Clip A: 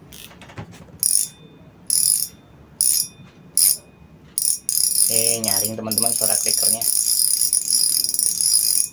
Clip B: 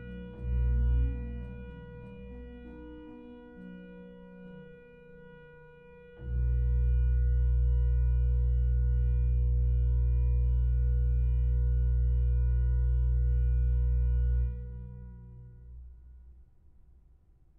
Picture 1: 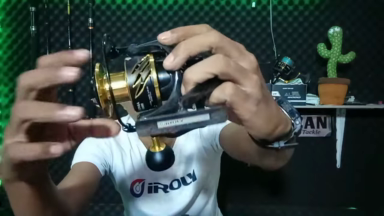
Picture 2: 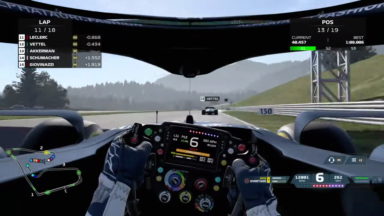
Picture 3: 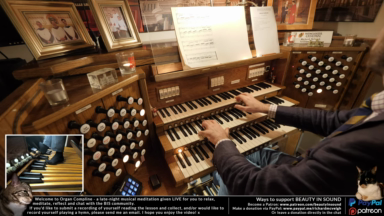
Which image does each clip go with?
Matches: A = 1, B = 3